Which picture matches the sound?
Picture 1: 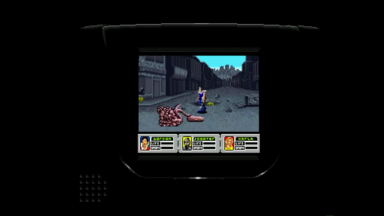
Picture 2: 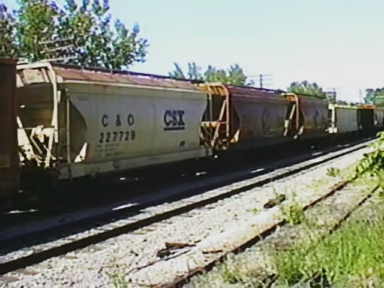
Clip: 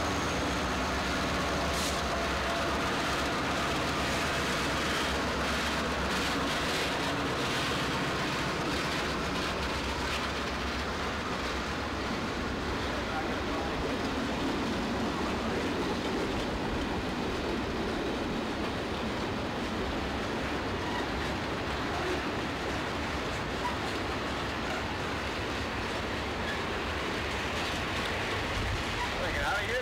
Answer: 2